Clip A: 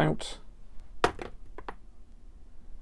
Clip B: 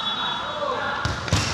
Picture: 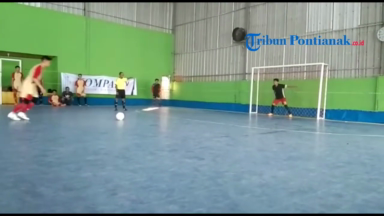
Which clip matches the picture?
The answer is B